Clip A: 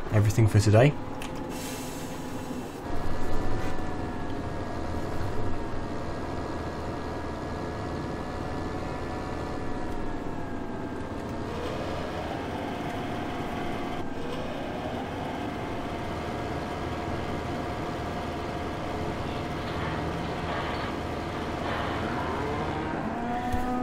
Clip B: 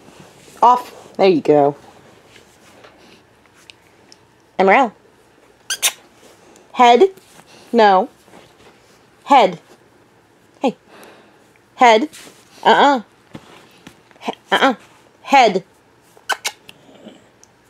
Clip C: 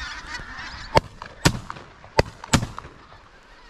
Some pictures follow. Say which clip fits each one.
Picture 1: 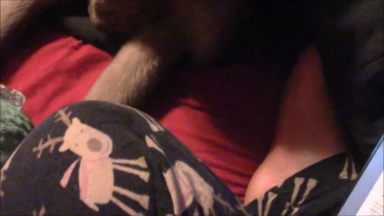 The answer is B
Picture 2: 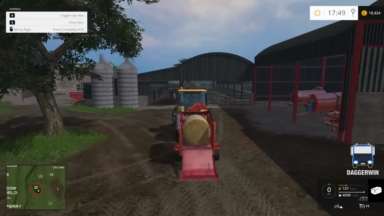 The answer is A